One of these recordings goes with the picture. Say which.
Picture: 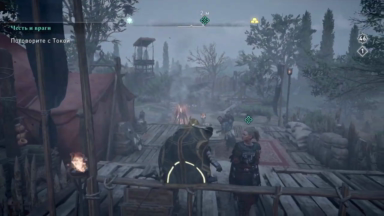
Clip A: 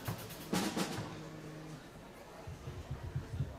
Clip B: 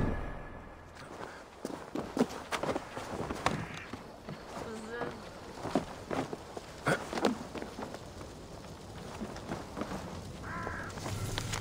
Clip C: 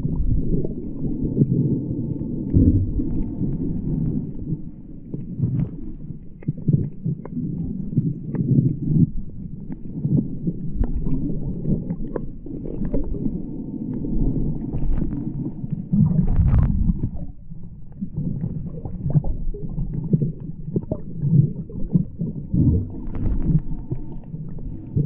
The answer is B